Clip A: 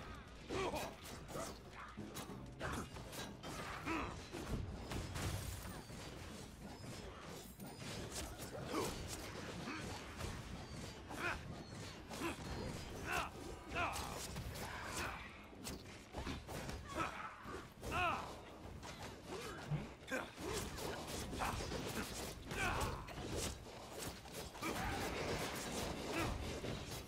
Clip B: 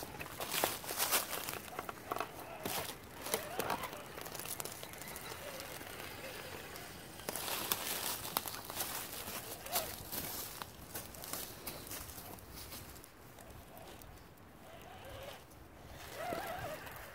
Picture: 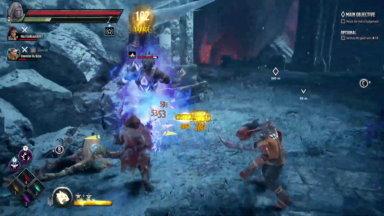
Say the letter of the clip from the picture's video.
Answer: A